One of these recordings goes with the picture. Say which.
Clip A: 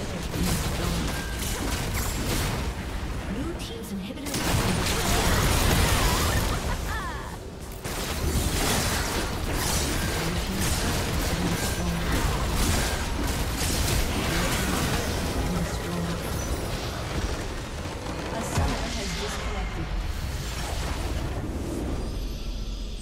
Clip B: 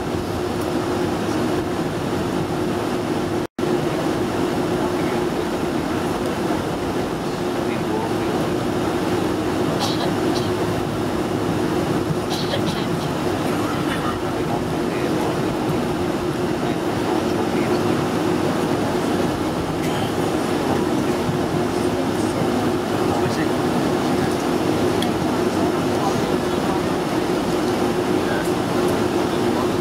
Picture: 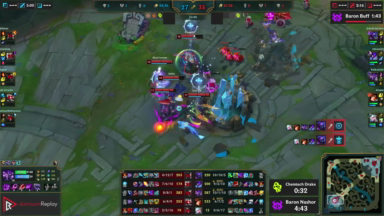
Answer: A